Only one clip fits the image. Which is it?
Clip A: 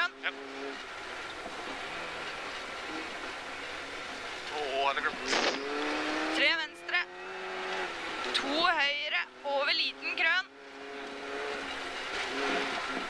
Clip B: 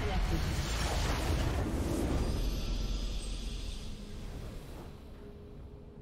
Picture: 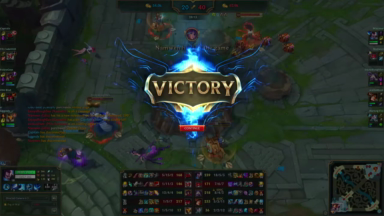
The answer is B